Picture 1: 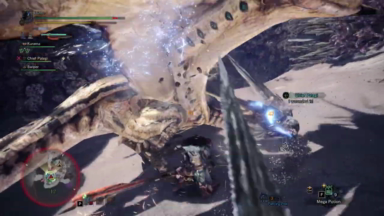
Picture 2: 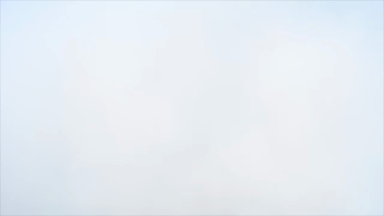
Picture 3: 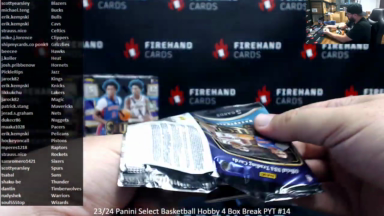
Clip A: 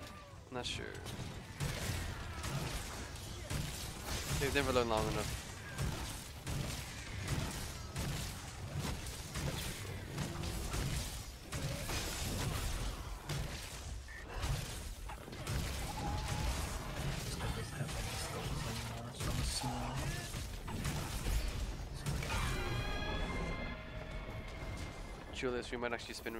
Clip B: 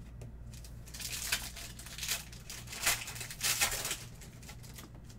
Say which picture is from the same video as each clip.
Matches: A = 1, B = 3